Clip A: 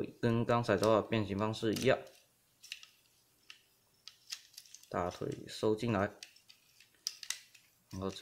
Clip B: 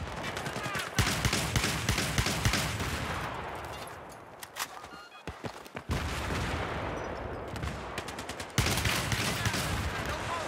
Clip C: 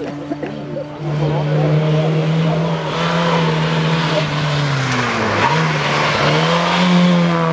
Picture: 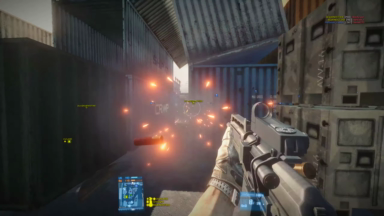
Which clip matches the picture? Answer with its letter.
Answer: B